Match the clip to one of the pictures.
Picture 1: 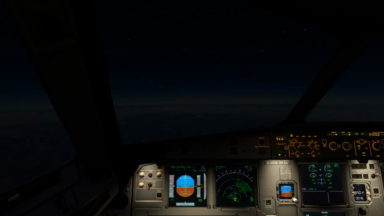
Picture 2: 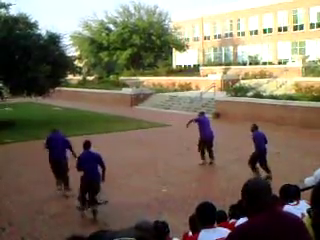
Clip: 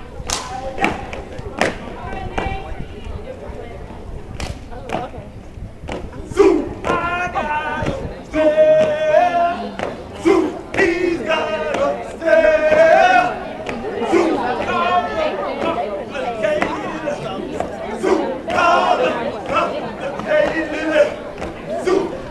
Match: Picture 2